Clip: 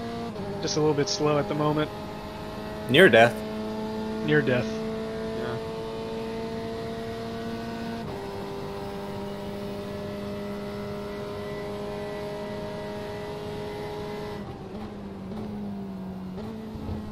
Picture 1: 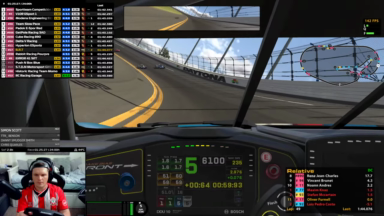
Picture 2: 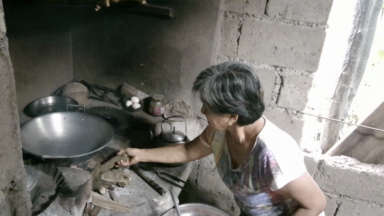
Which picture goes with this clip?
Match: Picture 1